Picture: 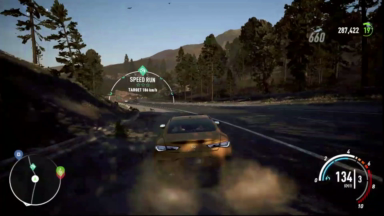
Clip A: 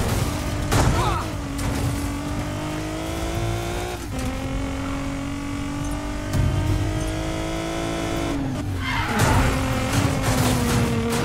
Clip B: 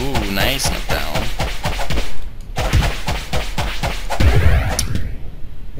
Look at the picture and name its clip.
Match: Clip A